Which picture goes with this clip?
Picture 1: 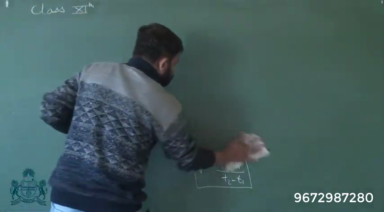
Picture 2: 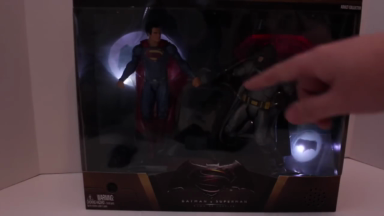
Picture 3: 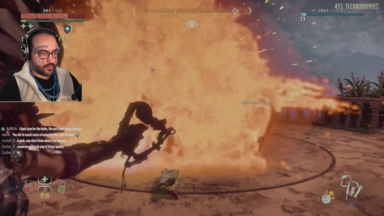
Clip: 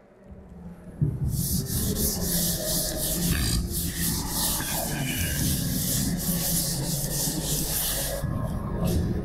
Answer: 1